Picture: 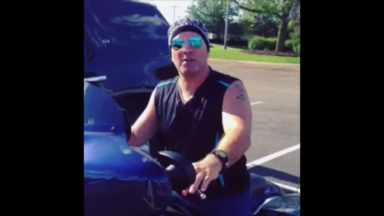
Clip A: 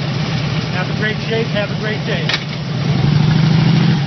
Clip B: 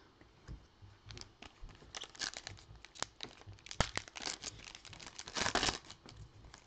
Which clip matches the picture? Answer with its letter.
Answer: A